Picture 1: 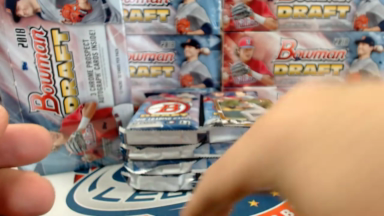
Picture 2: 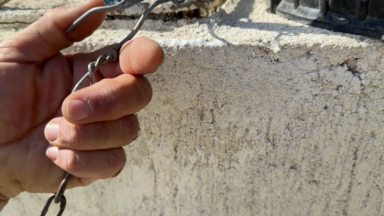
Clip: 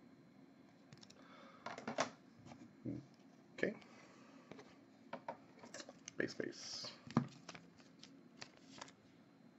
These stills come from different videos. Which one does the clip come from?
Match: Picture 1